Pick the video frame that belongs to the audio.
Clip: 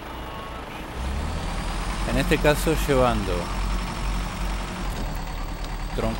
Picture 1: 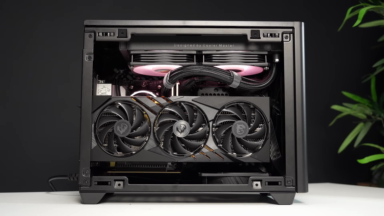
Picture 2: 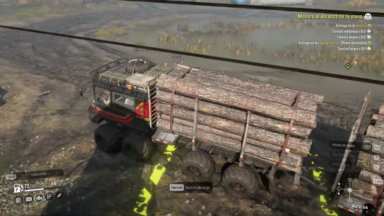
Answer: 2